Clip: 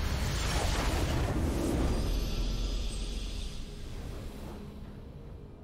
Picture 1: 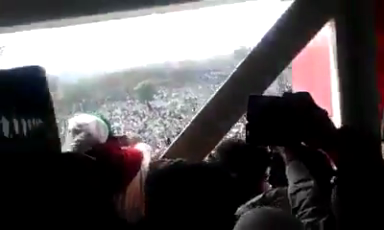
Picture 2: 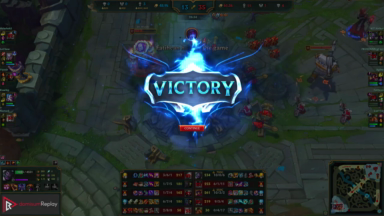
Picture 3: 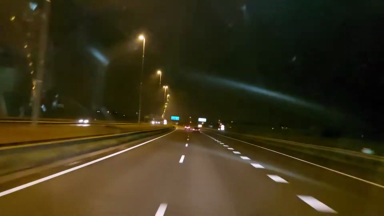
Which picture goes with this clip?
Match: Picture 2